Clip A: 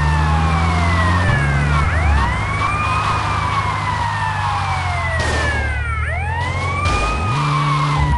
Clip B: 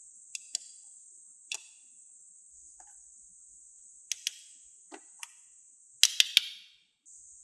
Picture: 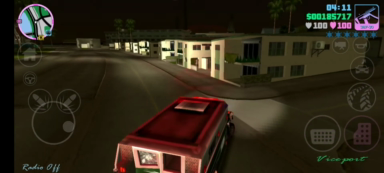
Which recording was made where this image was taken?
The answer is A